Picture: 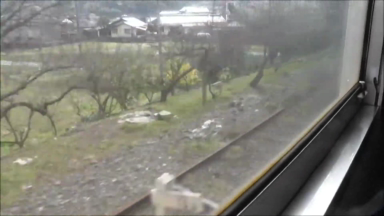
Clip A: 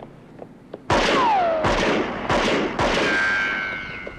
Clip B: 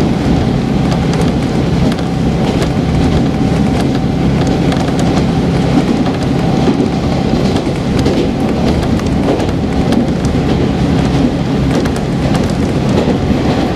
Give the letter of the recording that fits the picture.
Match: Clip B